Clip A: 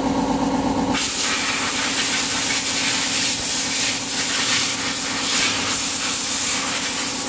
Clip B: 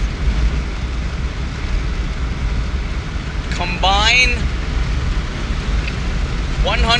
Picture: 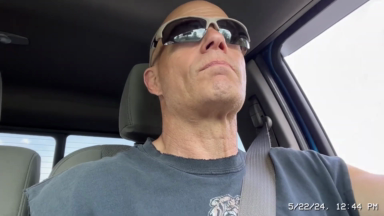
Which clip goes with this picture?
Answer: B